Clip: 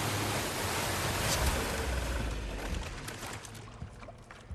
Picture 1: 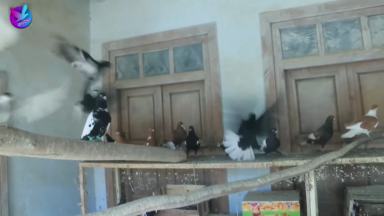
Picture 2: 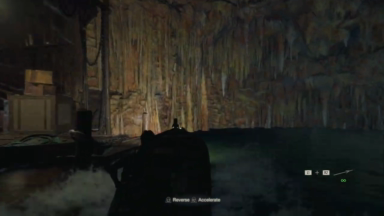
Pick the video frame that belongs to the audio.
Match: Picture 2